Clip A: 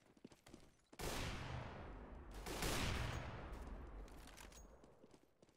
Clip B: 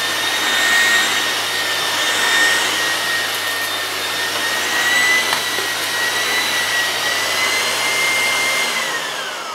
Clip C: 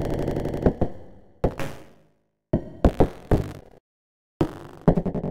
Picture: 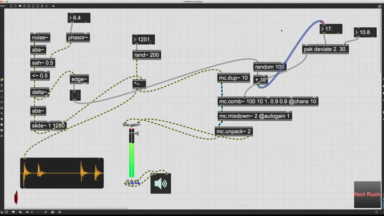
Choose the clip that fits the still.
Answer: C